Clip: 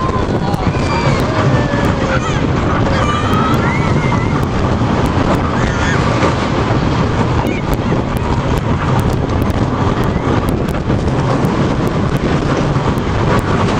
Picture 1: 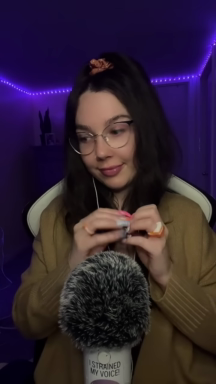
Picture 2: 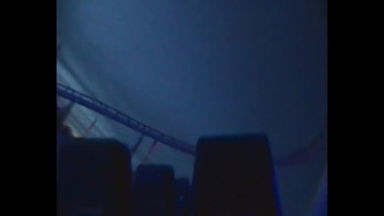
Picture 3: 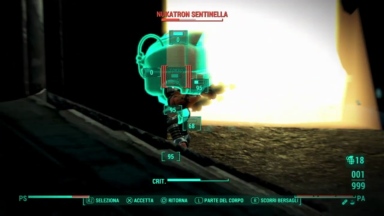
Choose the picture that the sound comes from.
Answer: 2